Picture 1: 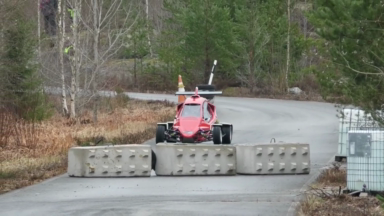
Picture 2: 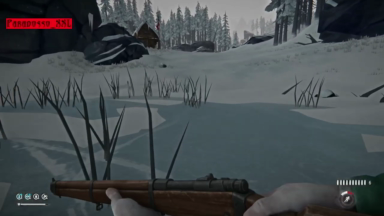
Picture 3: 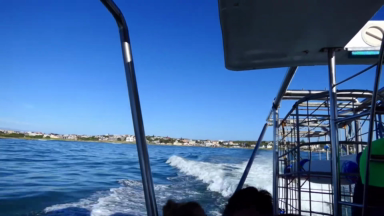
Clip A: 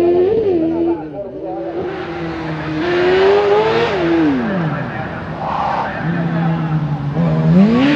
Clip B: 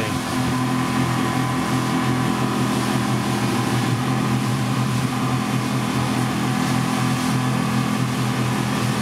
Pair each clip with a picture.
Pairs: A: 1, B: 3